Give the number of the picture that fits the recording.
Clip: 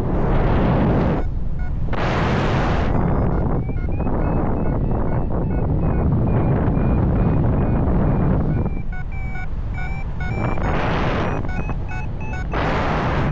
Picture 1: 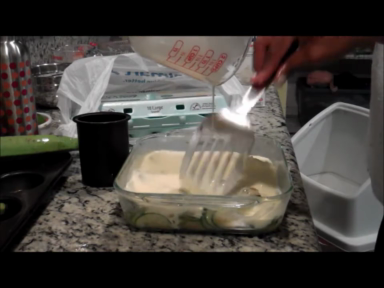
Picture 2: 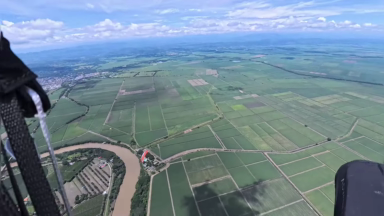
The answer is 2